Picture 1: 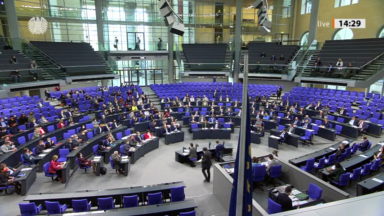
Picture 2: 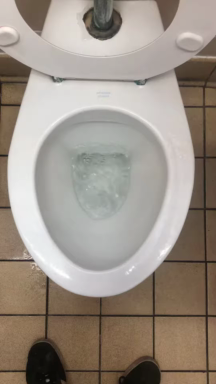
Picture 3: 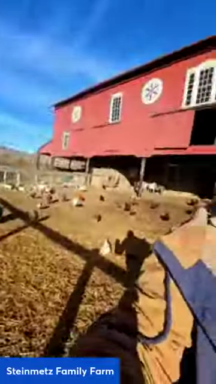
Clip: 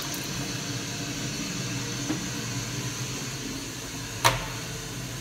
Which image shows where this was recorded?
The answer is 2